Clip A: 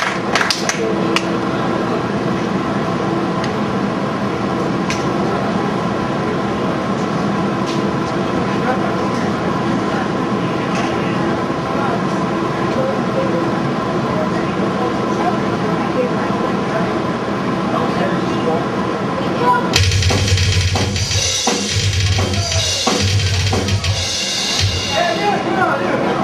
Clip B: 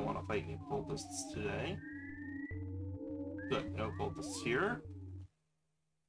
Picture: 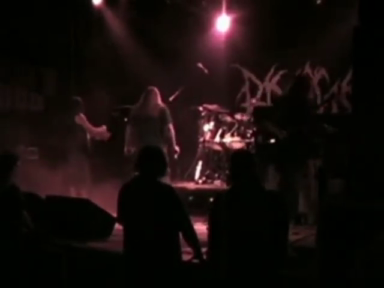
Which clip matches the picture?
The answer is A